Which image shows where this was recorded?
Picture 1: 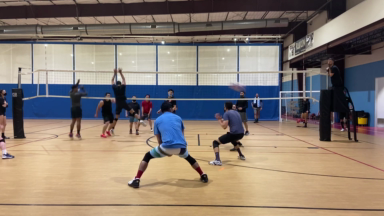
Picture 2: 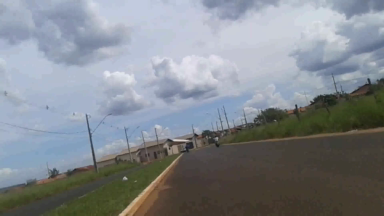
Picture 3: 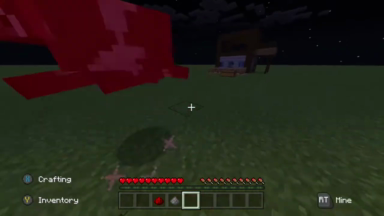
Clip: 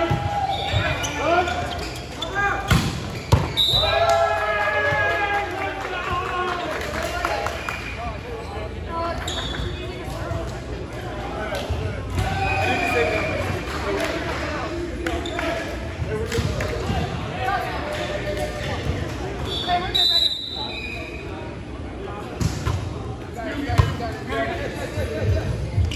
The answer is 1